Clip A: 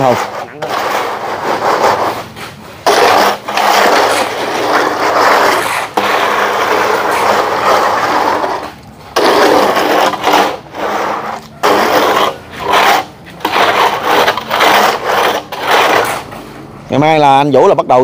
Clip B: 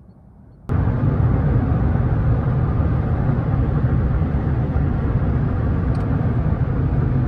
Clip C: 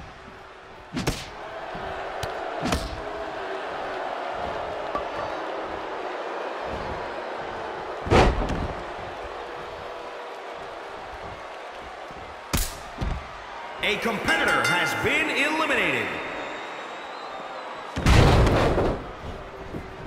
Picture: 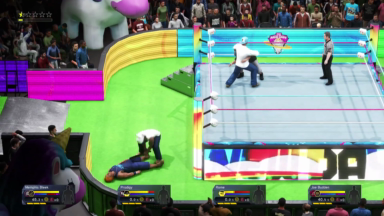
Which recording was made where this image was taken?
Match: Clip C